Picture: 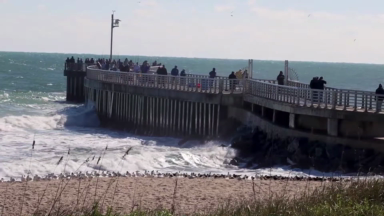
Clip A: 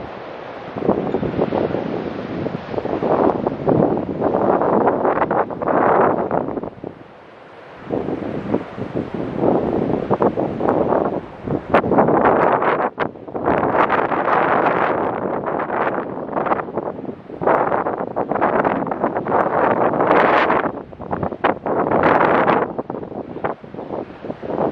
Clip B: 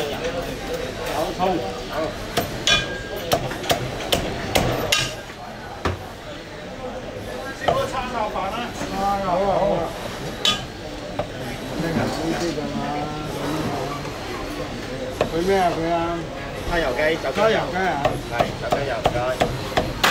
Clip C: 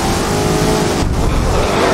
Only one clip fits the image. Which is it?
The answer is A